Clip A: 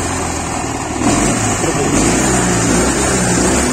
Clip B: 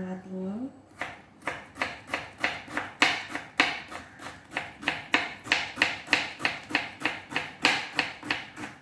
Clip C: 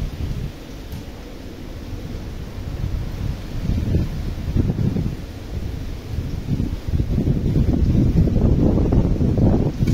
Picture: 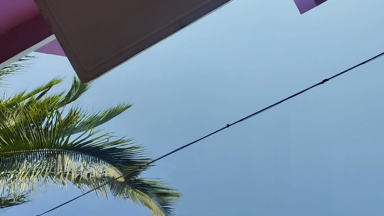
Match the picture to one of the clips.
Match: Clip C